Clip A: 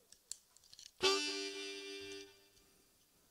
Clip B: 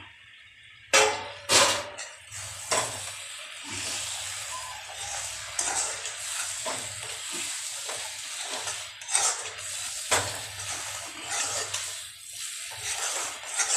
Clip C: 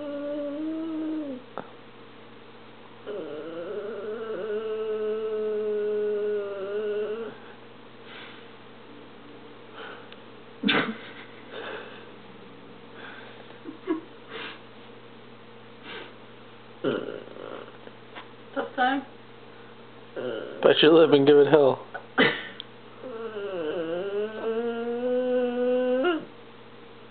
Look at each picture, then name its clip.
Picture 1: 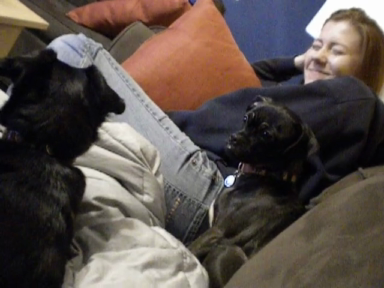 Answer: C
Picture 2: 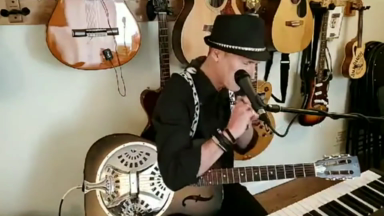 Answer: A